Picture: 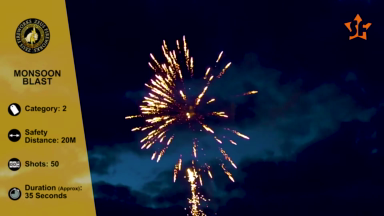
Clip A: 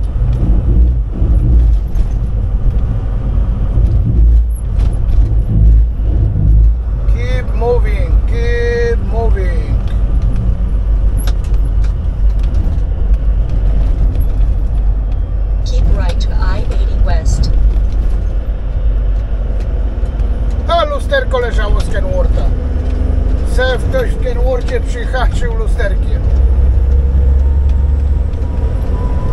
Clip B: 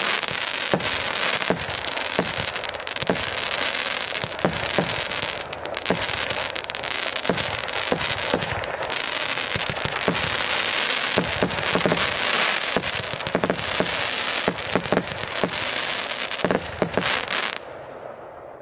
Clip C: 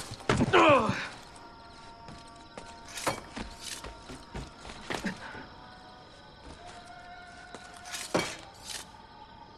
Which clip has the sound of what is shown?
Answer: B